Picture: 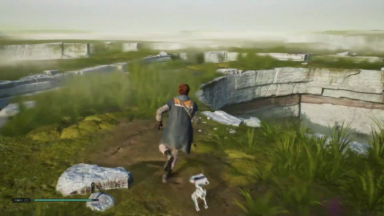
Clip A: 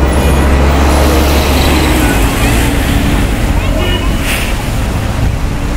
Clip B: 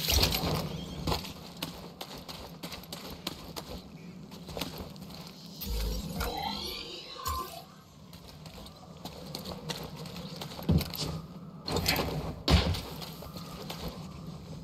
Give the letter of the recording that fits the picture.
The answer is B